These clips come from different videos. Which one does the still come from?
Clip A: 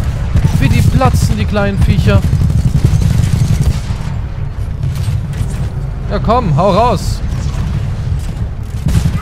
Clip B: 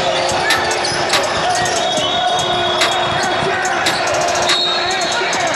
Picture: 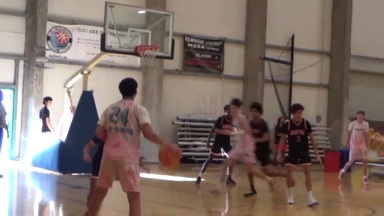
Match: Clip B